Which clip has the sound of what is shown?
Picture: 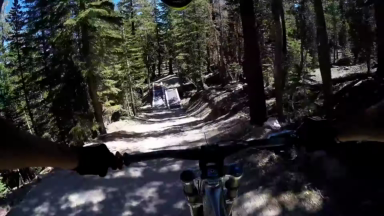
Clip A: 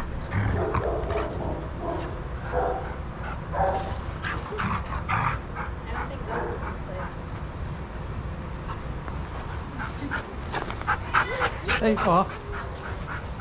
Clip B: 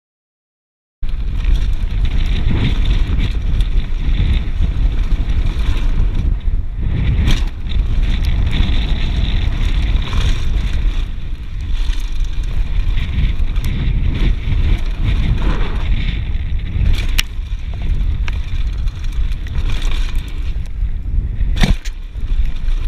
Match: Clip B